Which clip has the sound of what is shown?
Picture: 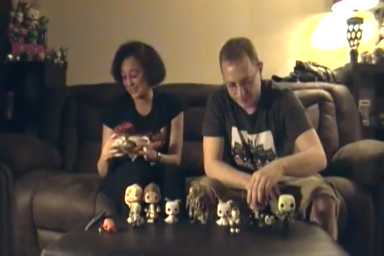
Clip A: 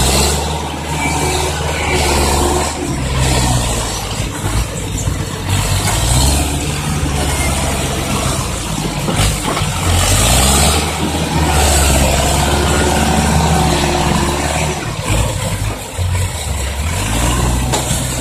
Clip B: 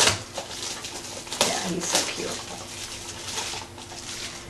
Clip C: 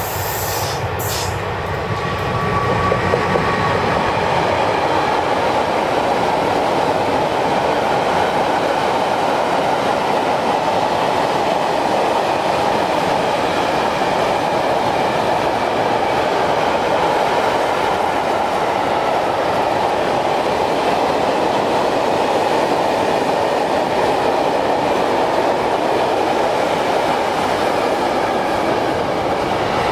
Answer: B